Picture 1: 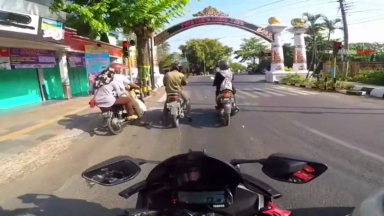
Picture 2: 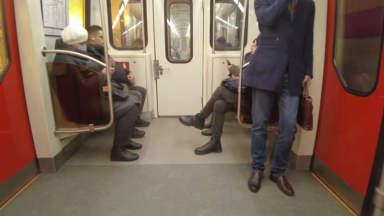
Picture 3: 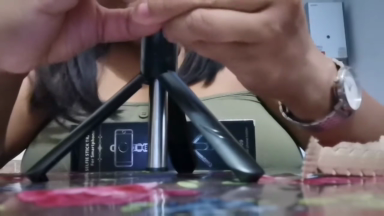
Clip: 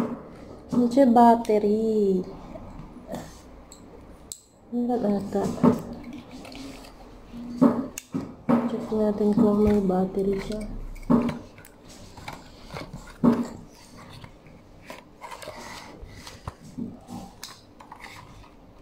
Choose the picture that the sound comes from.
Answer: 3